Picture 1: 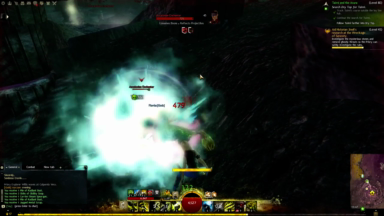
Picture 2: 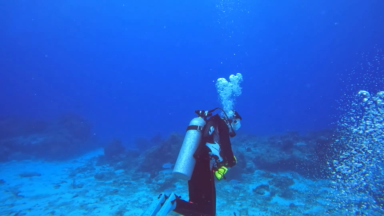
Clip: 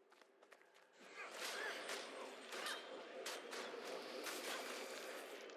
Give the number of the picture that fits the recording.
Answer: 1